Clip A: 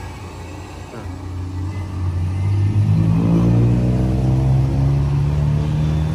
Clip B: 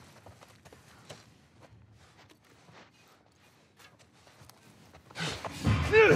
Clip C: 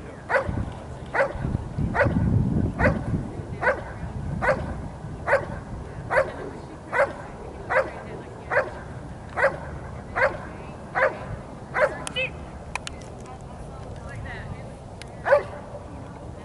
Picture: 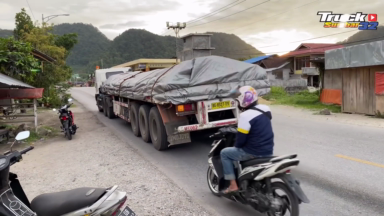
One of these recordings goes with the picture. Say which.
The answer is A